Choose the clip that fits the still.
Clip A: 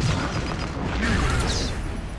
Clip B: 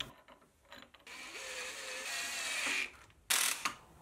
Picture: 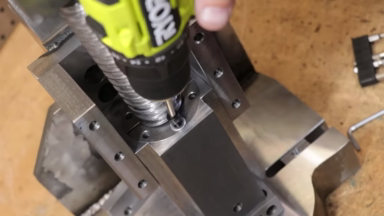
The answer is B